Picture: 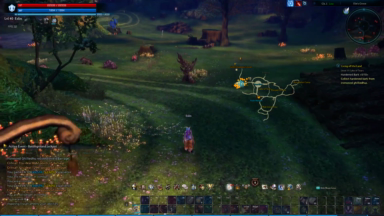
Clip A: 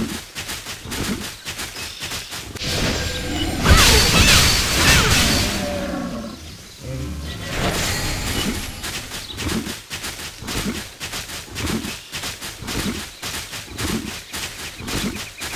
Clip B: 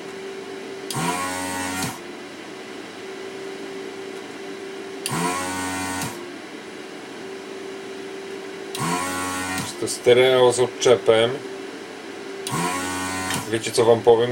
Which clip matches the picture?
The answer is A